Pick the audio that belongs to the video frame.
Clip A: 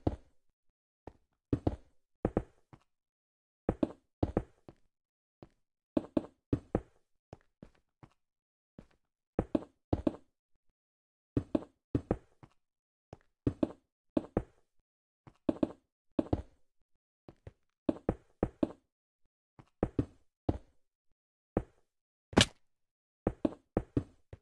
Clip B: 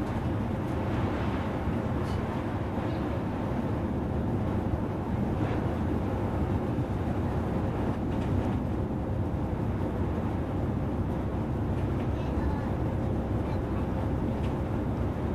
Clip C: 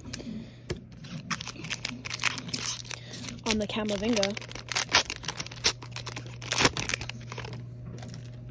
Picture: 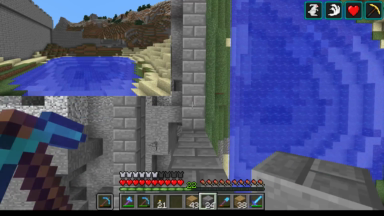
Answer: A